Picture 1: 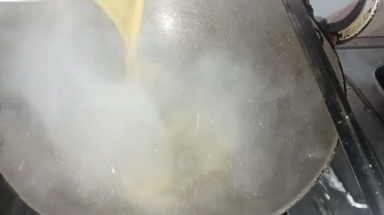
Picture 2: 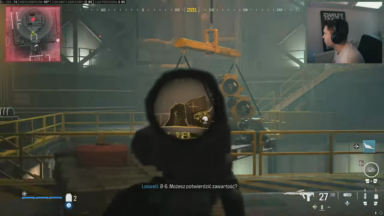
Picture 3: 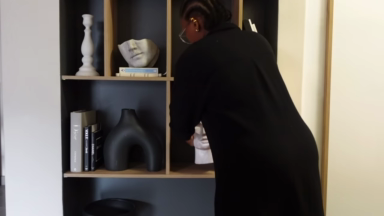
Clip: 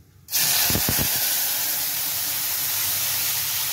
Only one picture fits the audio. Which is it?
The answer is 1